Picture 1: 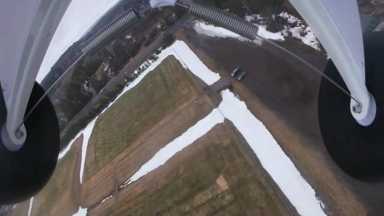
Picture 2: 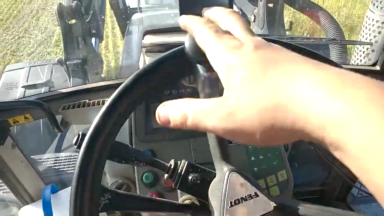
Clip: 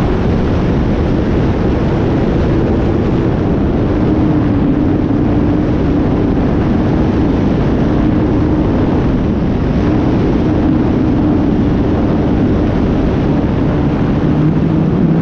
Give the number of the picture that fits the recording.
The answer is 1